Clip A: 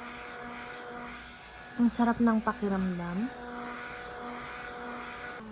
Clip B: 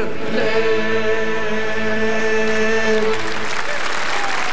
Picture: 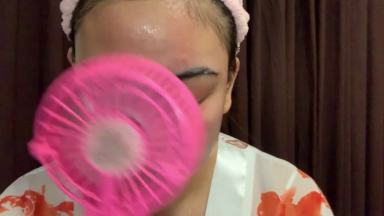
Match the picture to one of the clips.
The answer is A